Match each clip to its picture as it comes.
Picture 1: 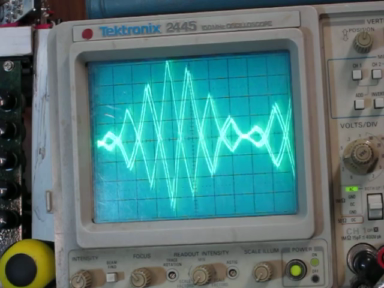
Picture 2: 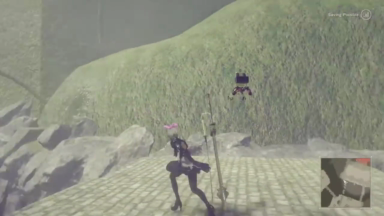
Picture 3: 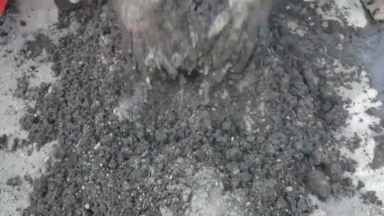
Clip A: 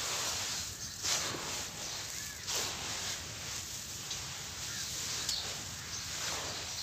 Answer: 3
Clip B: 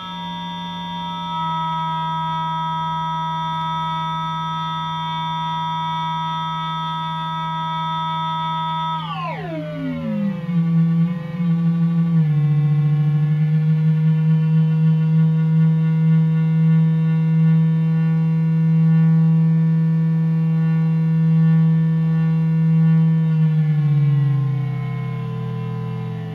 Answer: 1